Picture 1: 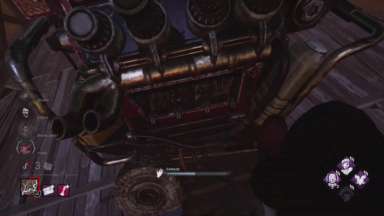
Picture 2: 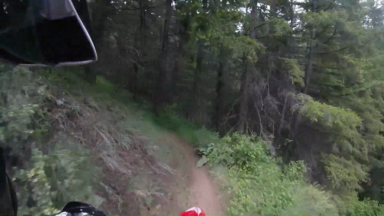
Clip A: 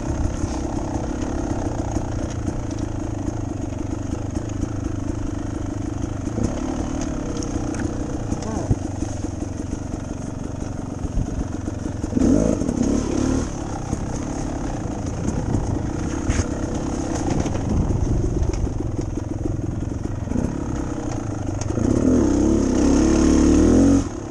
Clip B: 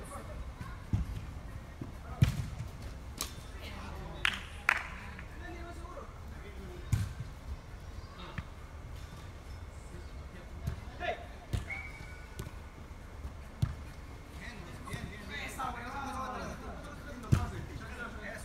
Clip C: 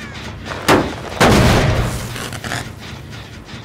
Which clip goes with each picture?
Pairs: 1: C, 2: A